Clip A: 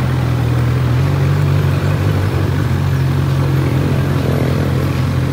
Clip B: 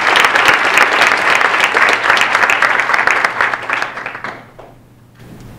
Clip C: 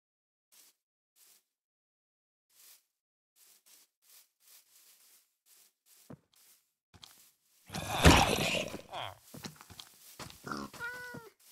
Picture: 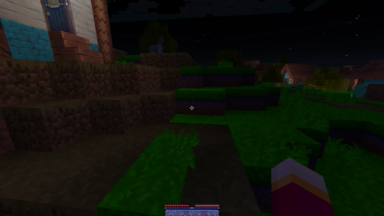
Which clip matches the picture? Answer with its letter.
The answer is C